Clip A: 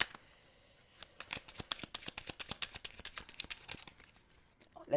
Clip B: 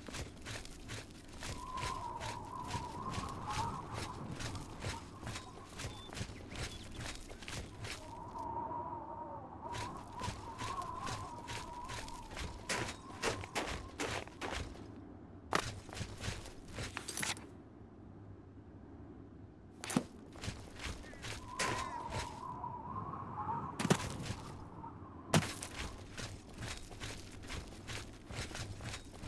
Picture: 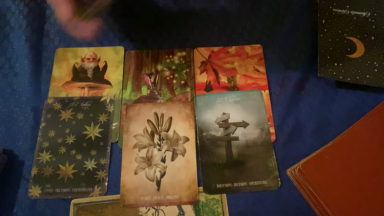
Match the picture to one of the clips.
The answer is A